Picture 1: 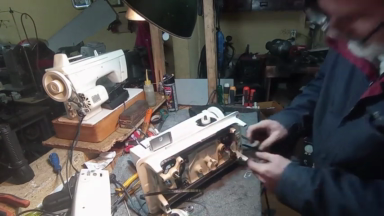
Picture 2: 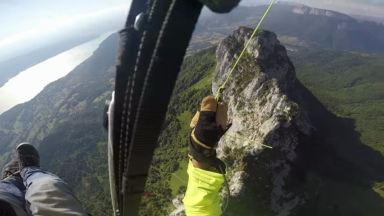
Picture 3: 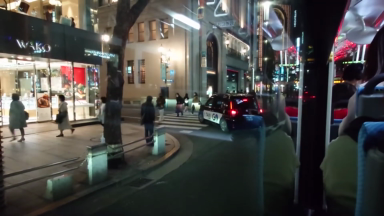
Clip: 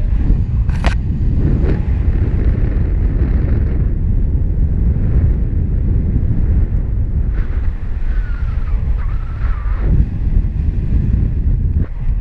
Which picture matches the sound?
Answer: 2